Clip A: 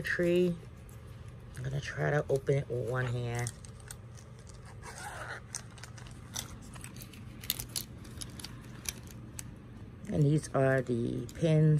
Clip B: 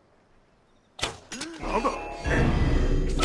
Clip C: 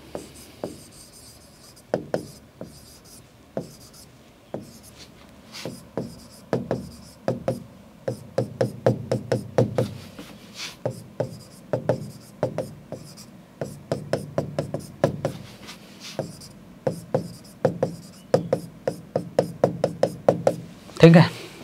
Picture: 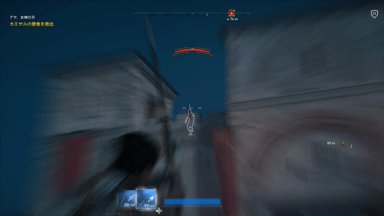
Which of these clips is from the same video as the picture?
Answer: B